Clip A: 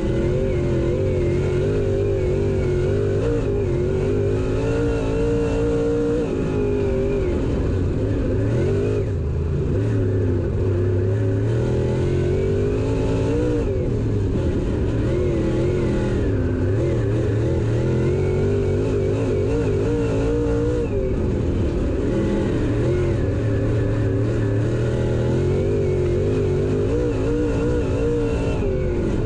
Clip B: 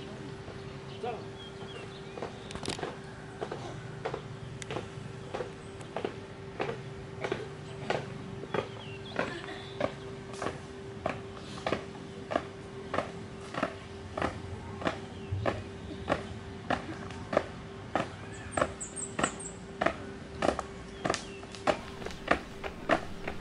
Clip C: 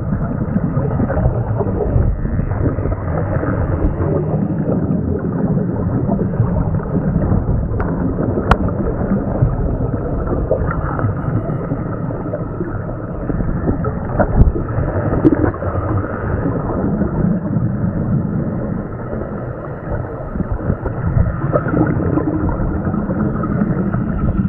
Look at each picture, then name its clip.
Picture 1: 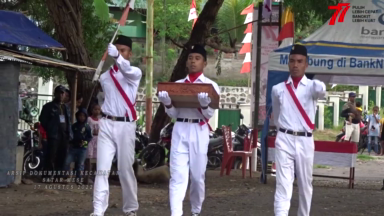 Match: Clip B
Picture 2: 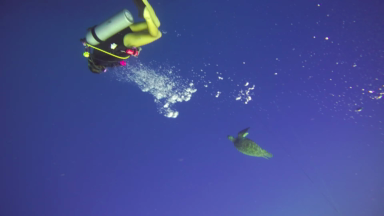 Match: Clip C